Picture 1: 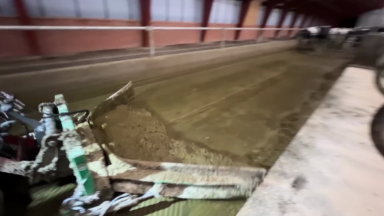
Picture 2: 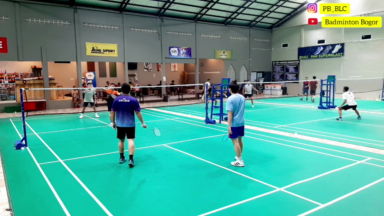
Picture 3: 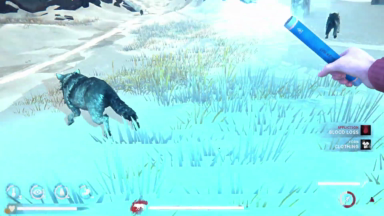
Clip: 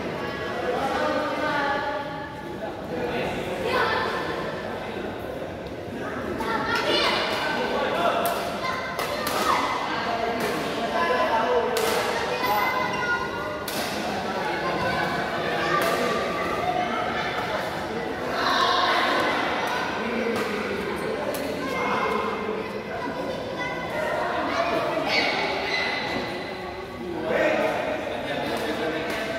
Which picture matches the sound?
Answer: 2